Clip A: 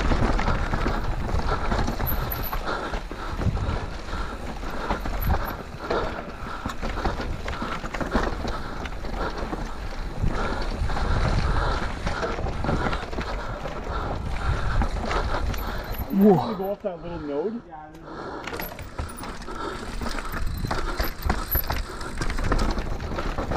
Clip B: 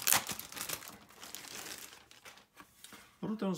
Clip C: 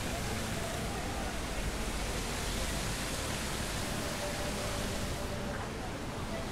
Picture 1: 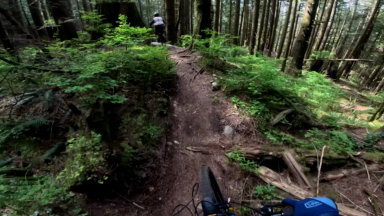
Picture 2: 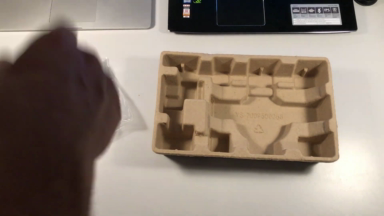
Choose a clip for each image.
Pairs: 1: A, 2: B